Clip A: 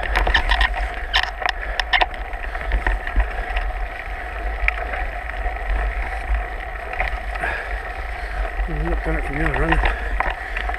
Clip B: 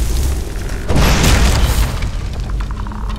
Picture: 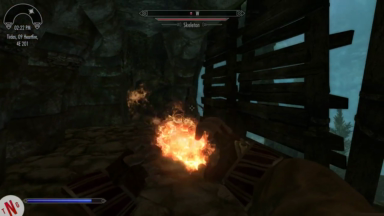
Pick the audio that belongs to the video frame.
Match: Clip B